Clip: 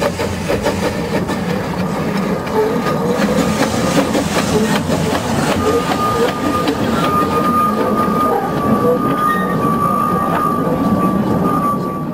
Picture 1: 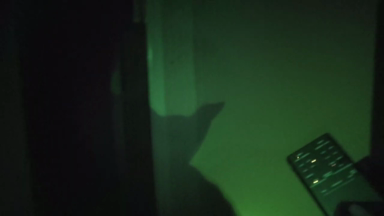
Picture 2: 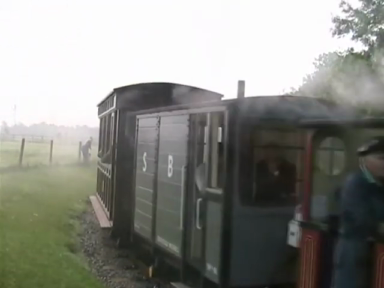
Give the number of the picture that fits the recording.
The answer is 2